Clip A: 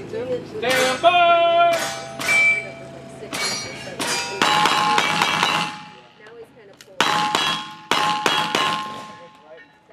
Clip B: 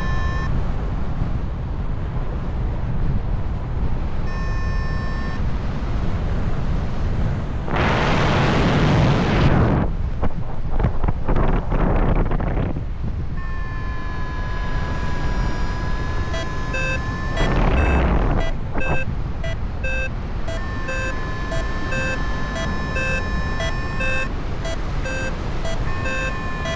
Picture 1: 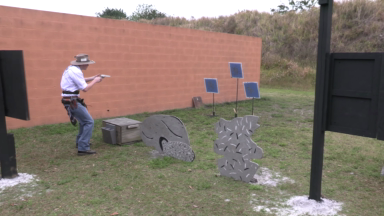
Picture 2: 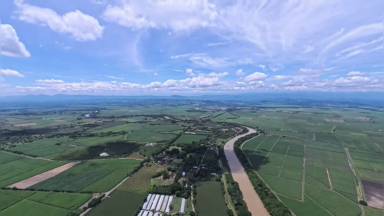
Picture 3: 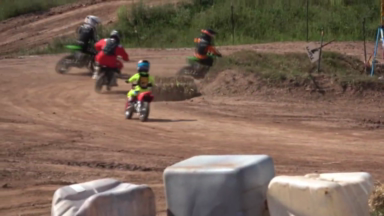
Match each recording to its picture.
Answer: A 1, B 2